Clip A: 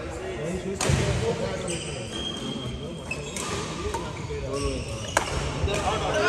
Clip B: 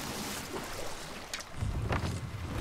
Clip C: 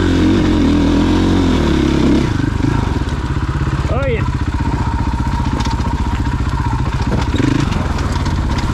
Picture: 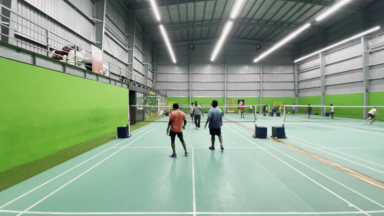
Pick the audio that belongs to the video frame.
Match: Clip A